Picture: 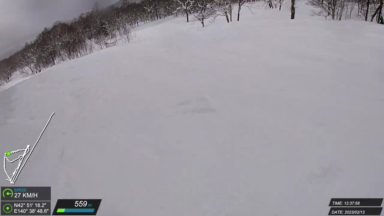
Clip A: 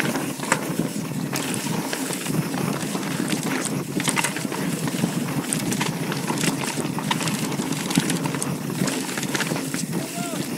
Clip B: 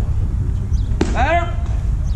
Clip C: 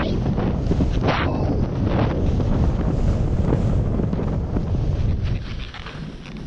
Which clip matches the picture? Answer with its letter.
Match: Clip C